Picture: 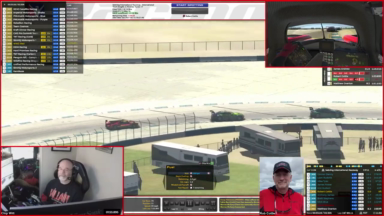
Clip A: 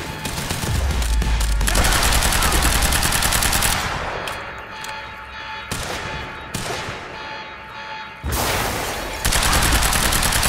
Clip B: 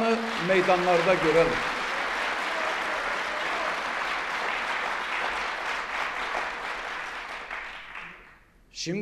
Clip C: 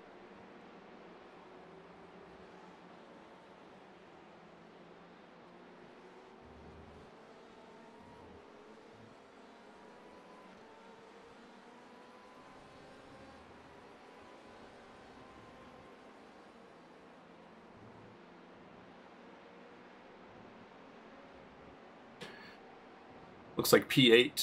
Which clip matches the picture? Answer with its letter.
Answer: C